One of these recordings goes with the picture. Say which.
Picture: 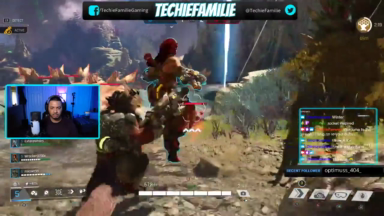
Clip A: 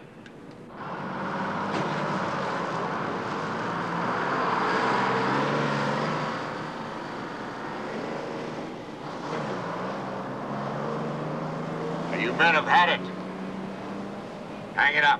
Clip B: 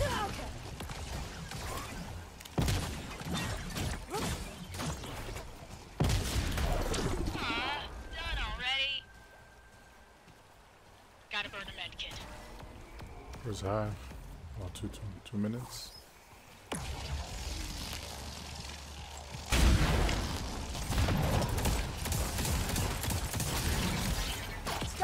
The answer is B